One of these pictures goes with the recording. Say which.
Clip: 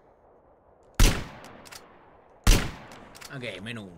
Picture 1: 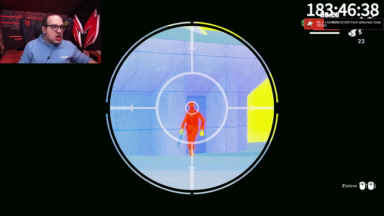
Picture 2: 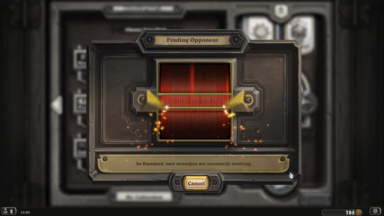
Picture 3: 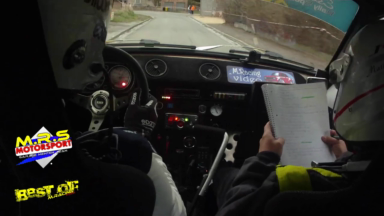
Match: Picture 1